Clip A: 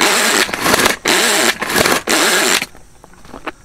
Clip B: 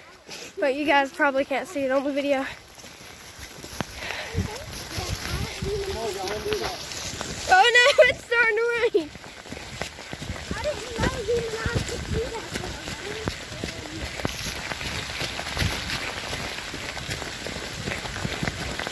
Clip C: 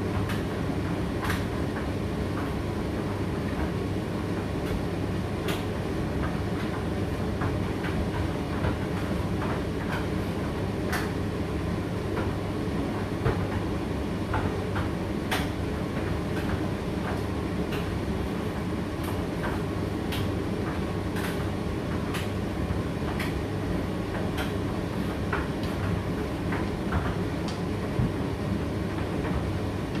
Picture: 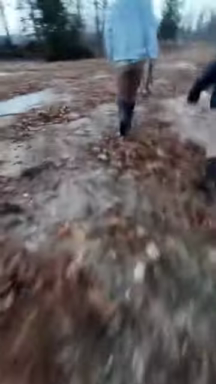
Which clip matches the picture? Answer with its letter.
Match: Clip B